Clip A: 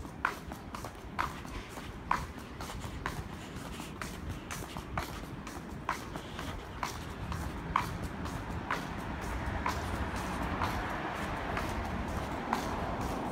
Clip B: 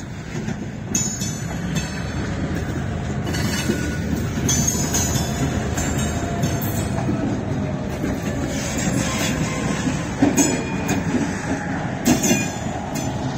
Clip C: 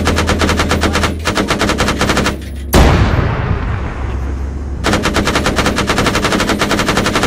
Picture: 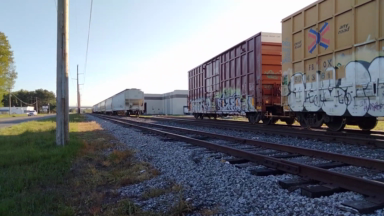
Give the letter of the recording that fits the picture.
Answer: B